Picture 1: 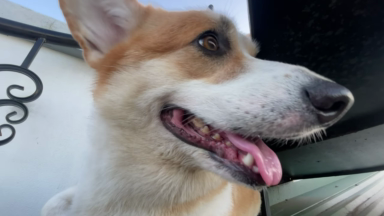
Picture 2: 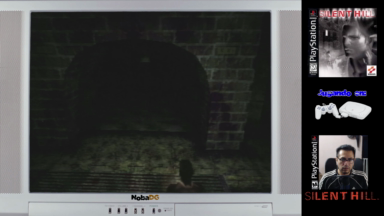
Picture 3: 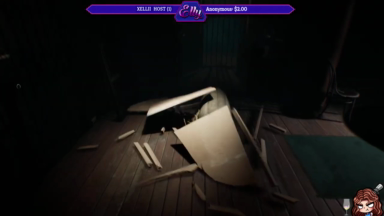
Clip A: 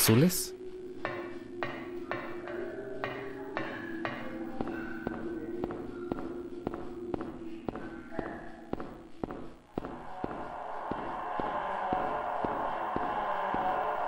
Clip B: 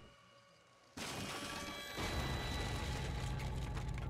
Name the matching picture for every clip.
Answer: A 2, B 3